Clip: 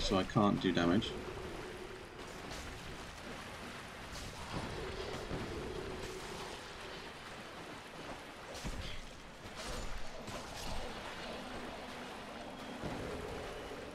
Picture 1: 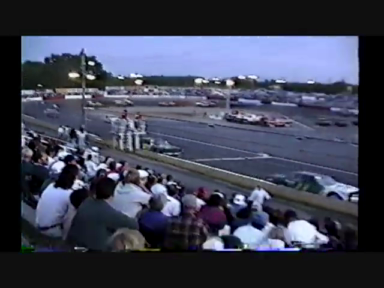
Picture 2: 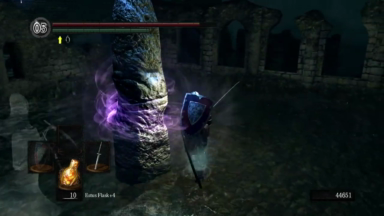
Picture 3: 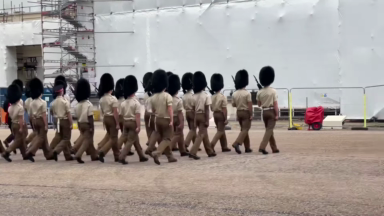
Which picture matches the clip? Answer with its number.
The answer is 2